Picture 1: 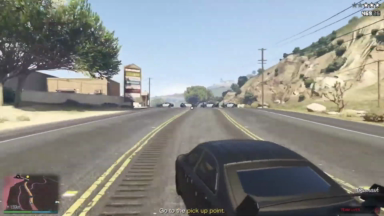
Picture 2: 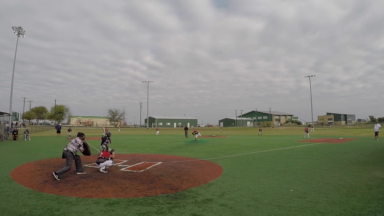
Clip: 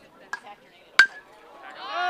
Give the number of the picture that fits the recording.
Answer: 2